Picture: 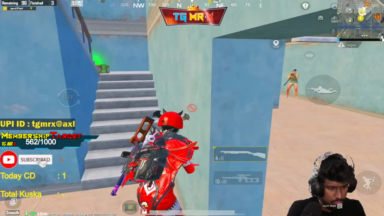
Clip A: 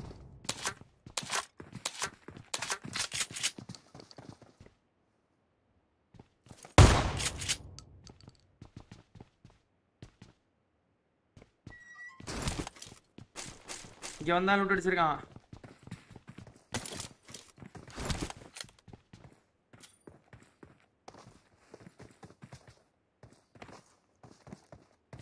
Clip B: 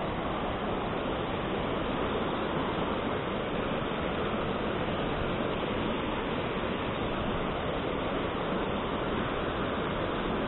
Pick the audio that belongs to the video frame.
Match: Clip A